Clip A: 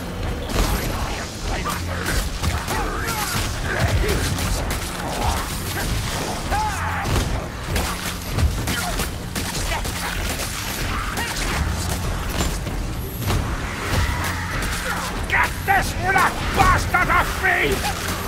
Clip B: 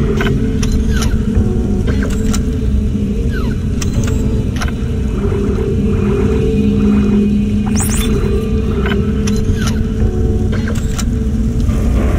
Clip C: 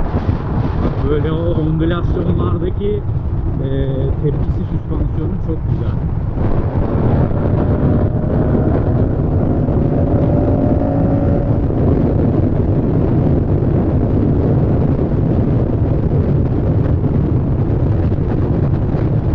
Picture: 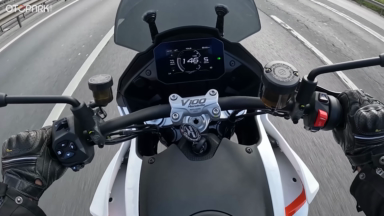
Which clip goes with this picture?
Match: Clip C